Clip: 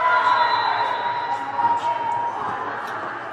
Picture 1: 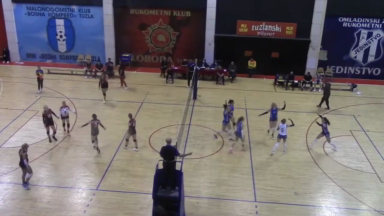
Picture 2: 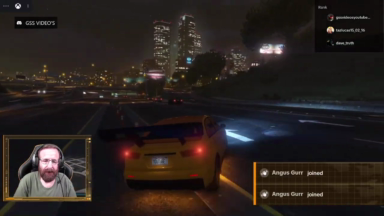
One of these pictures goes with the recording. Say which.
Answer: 1